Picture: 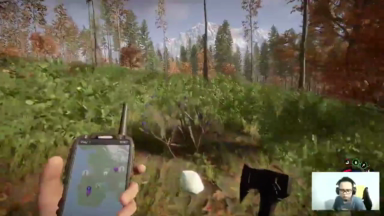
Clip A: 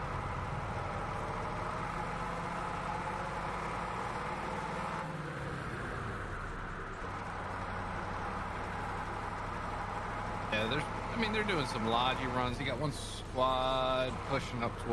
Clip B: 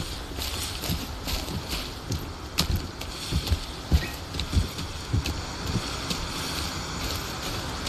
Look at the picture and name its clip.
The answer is B